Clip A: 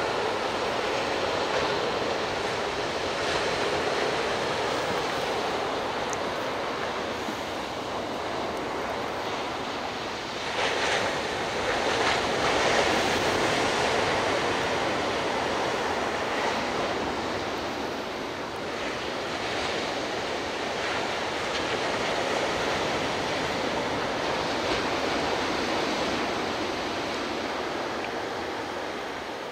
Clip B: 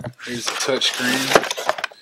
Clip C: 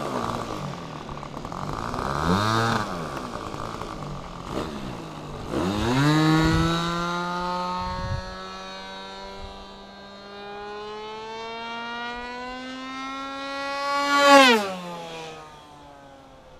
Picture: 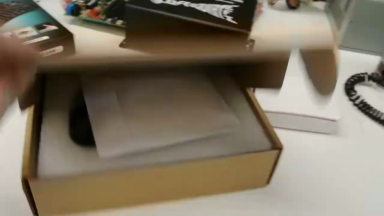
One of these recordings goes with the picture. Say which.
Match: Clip B